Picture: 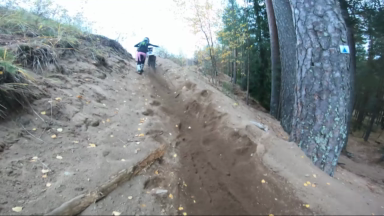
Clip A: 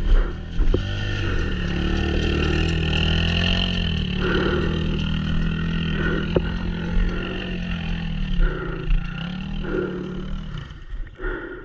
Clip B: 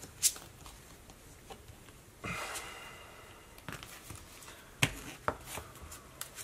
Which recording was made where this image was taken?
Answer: A